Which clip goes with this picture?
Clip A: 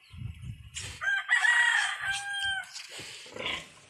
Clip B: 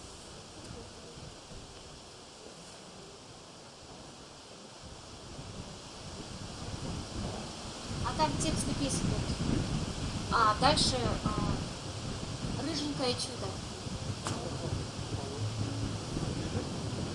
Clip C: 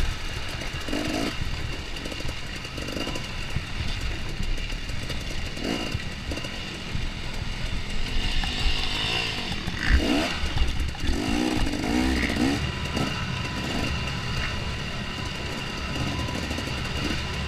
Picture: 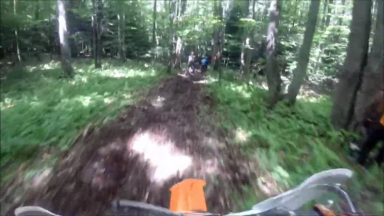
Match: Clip C